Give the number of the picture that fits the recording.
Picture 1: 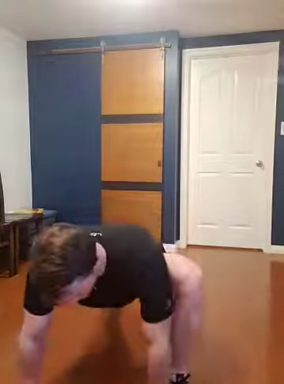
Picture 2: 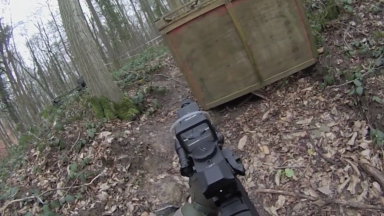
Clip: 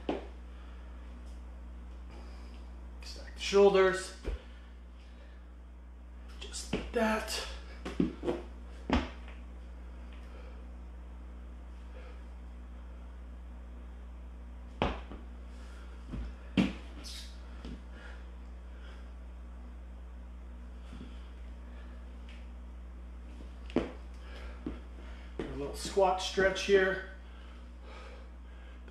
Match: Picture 1